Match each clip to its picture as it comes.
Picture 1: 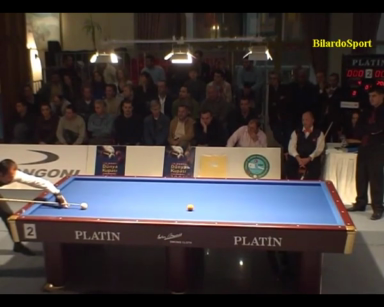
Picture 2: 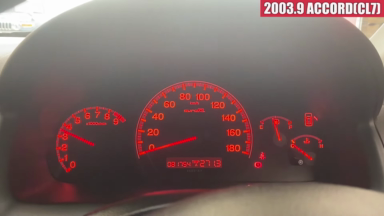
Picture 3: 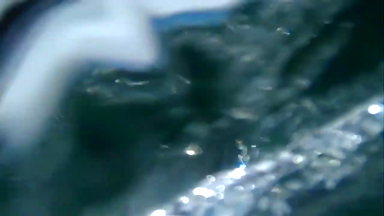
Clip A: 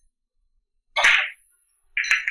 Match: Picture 1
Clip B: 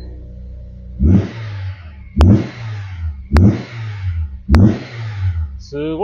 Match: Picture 2